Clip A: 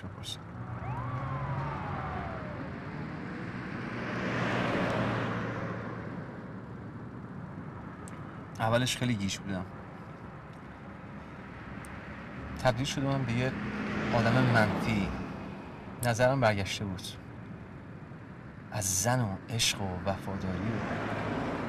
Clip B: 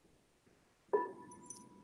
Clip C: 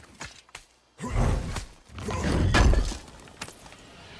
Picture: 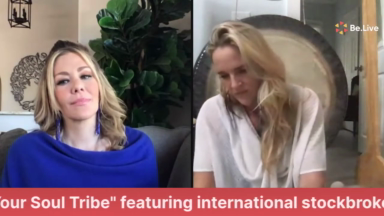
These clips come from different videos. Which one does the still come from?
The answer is B